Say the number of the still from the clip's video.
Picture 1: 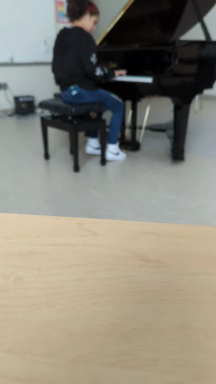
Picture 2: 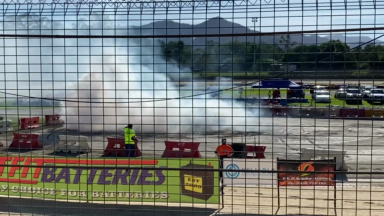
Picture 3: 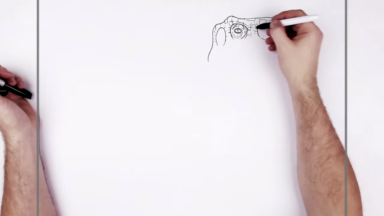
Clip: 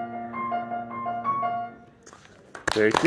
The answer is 1